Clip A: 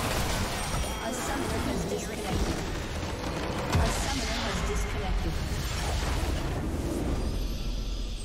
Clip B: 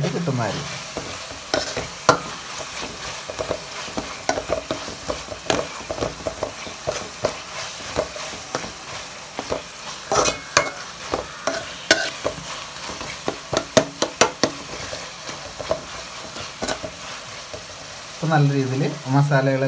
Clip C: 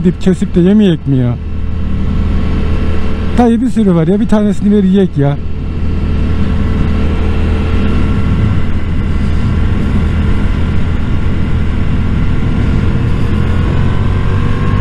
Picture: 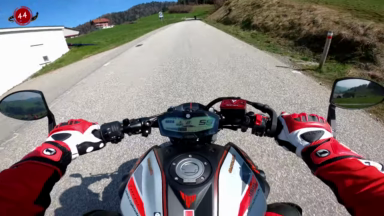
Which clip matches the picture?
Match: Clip C